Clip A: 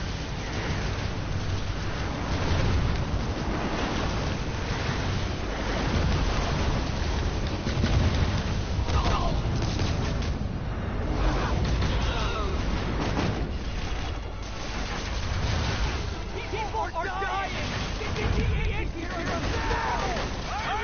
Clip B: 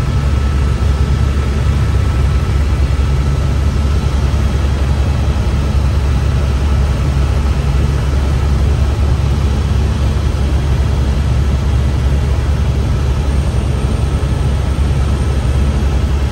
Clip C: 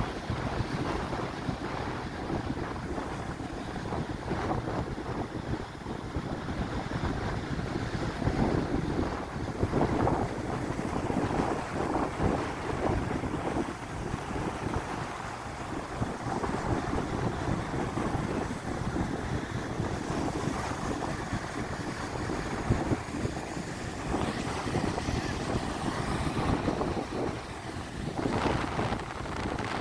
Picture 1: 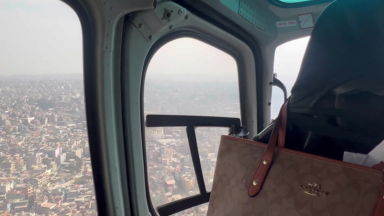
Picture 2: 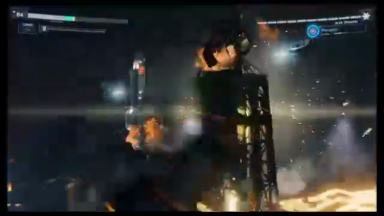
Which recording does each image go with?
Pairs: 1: B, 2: A